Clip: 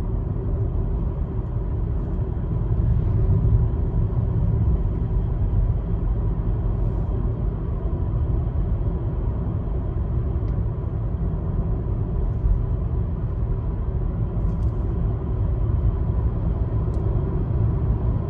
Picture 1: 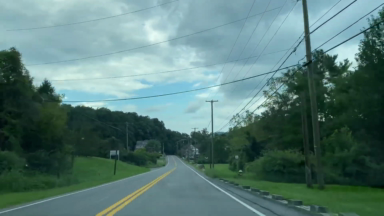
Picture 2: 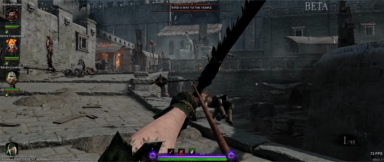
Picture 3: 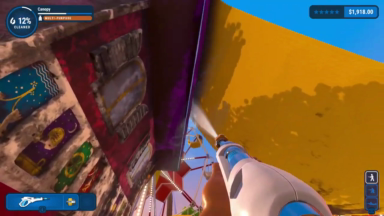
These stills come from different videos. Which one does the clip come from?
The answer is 1